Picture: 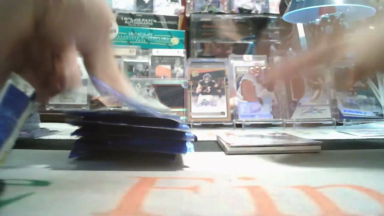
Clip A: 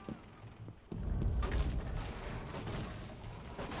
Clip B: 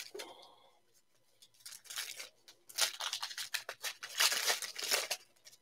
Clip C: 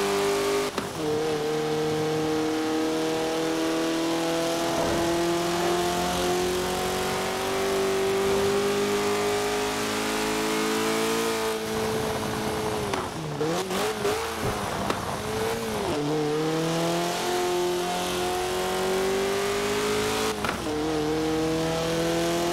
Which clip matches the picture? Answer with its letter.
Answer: B